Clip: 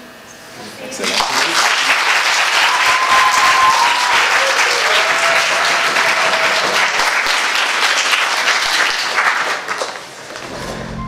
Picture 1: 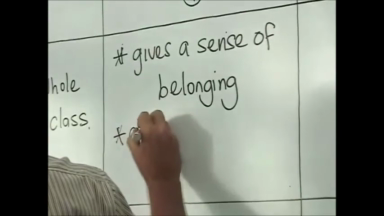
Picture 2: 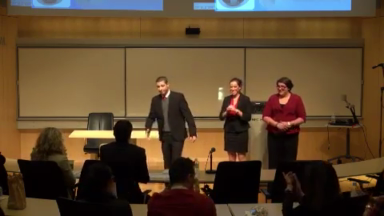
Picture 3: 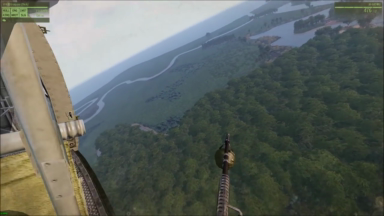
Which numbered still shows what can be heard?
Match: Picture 2